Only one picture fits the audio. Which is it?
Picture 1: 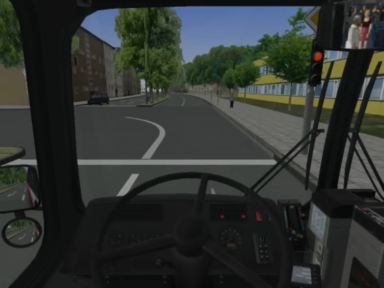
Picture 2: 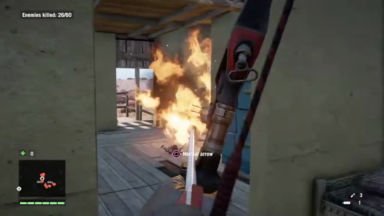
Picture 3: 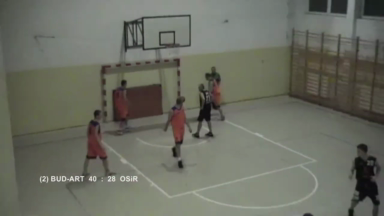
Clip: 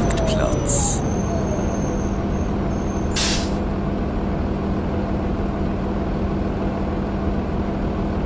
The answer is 1